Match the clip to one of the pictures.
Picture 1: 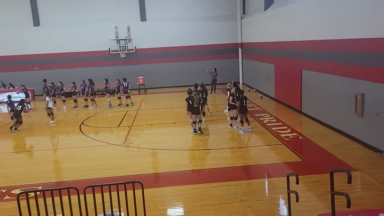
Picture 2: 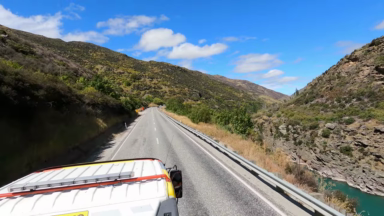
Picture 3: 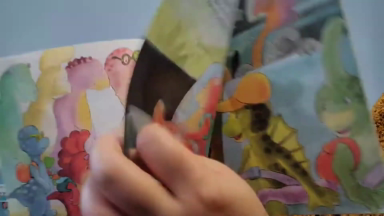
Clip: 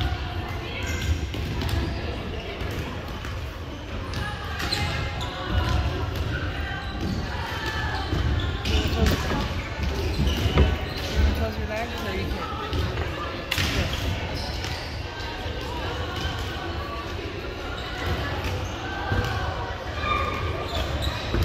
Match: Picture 1